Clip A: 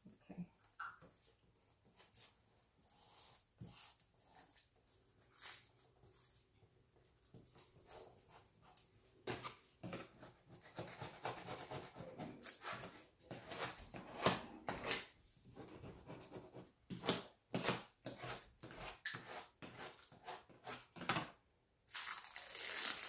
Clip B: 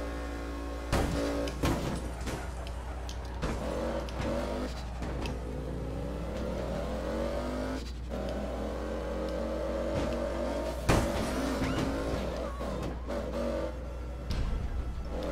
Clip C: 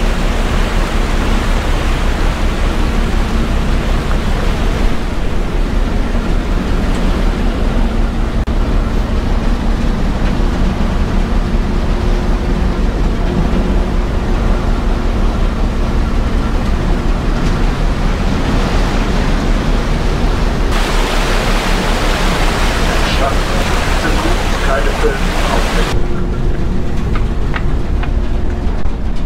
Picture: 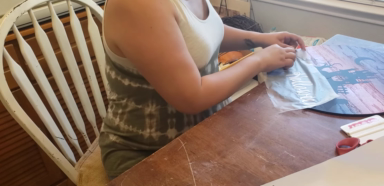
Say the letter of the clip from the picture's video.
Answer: A